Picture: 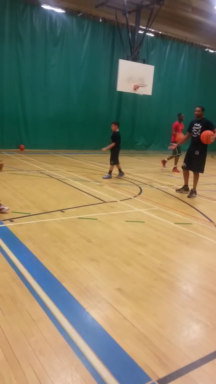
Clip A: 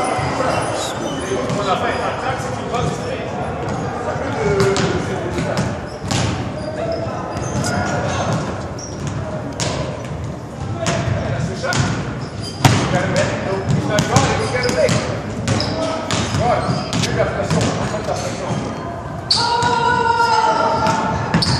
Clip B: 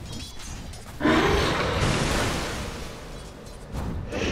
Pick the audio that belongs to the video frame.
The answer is A